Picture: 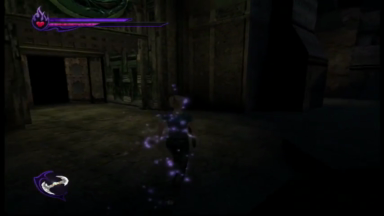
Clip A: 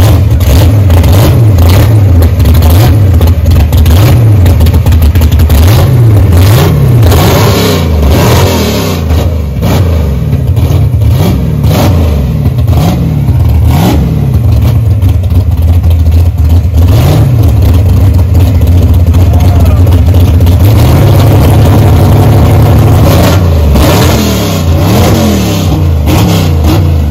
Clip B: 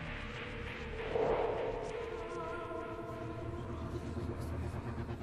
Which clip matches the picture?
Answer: B